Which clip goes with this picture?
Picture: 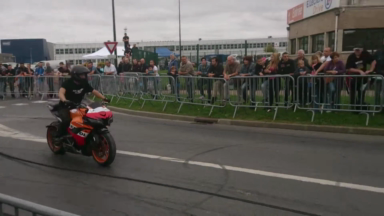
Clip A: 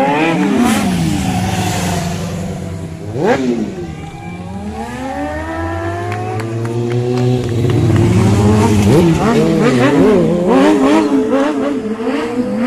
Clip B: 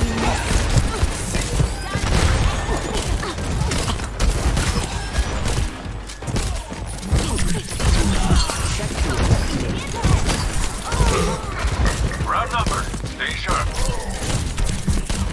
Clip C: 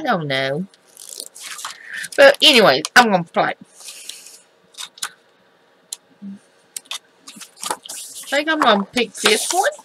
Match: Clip A